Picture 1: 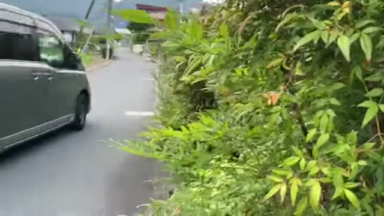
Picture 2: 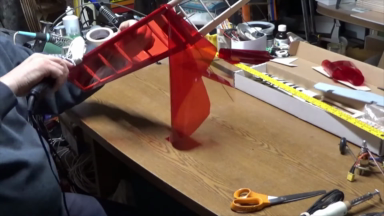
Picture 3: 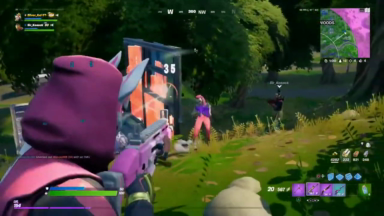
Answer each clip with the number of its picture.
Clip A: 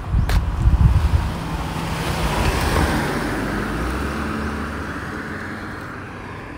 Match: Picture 1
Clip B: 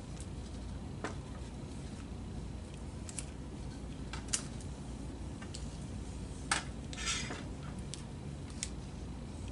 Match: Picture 2